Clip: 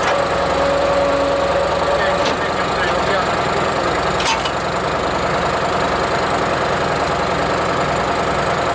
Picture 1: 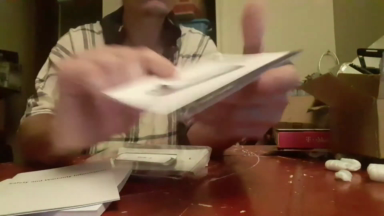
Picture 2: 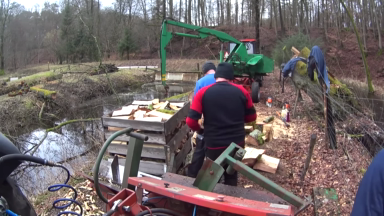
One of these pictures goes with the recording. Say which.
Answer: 2